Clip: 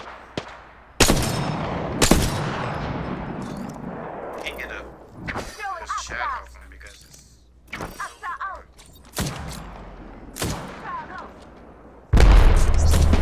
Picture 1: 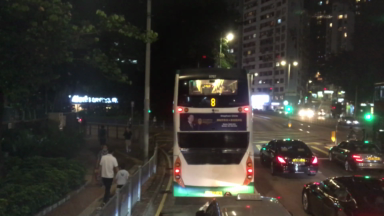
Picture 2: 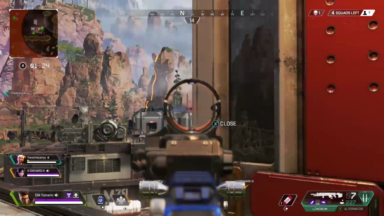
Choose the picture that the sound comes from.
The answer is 2